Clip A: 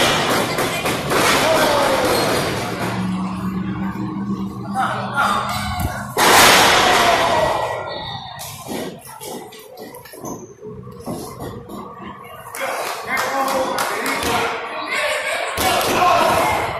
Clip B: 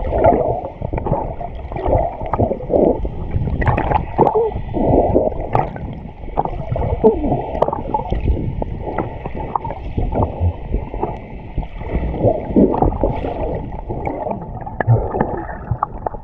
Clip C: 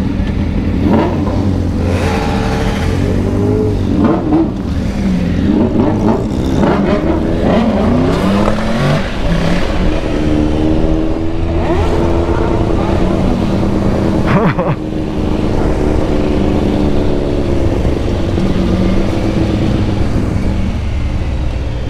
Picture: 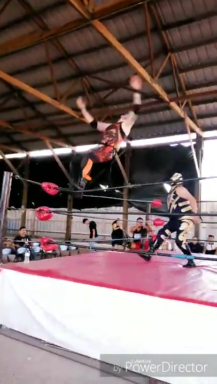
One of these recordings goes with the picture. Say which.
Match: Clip A